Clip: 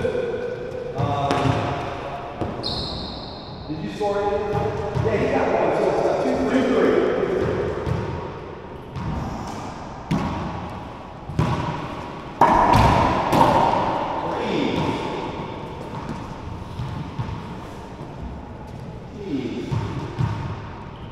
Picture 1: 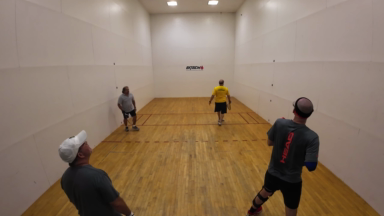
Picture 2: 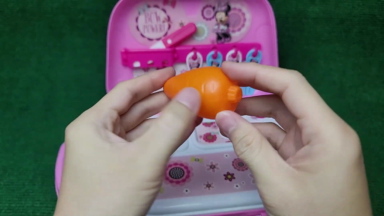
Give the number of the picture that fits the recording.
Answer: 1